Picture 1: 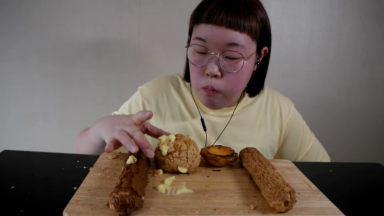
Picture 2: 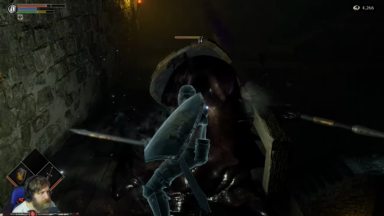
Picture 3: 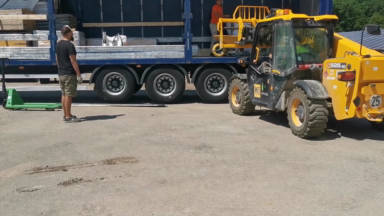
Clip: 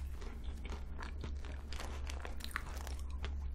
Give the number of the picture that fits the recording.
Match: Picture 1